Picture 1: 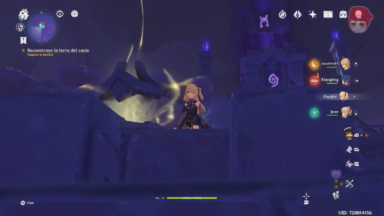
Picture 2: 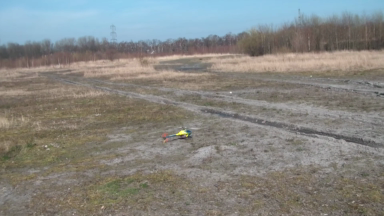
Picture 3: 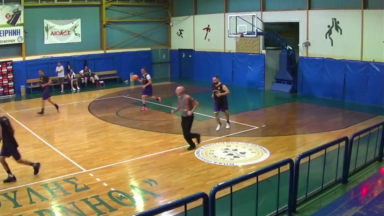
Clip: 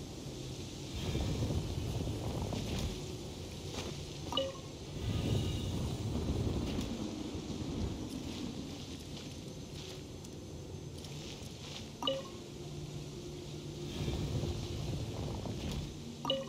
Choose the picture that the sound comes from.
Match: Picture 1